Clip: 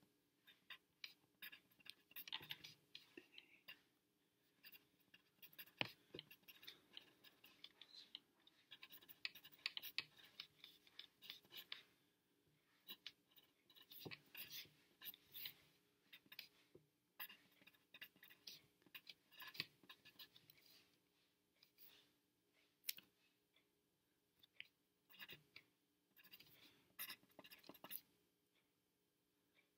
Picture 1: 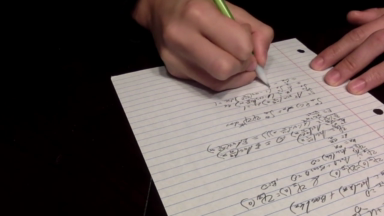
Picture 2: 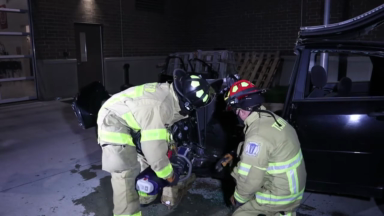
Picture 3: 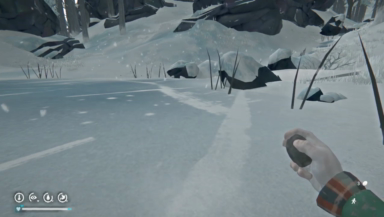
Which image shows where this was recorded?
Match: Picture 1